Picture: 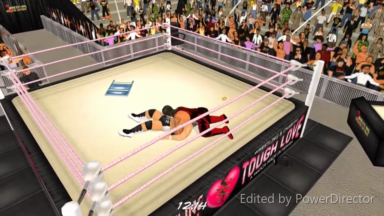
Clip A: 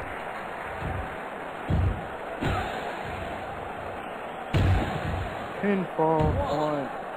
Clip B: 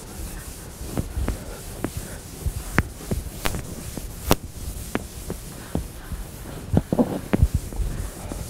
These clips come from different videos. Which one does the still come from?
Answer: A